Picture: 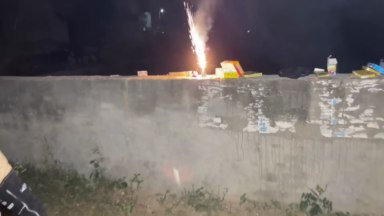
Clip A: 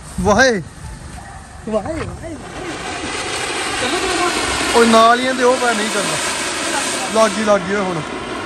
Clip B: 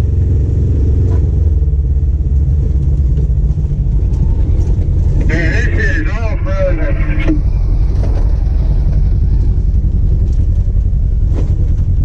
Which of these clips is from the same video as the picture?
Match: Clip A